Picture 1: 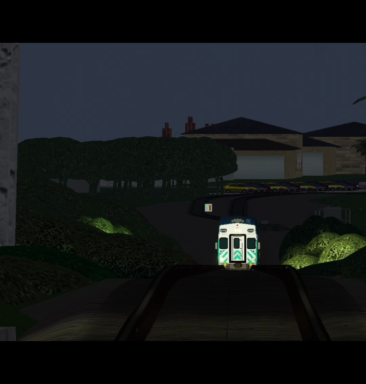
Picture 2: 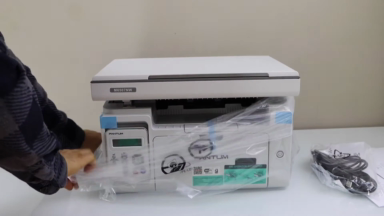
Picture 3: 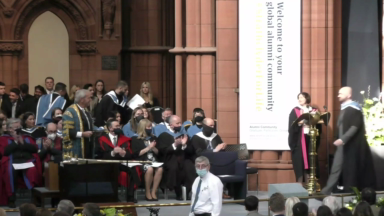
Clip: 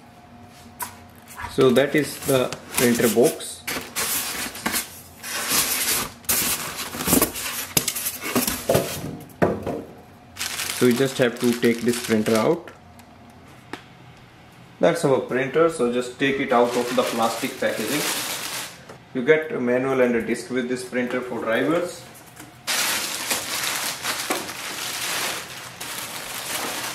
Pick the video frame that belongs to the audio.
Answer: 2